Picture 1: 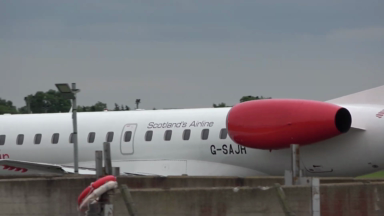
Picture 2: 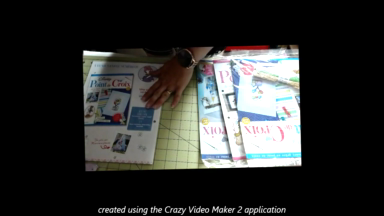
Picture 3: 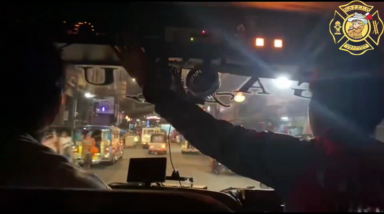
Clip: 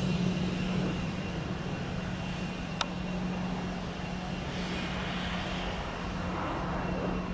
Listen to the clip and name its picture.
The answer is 1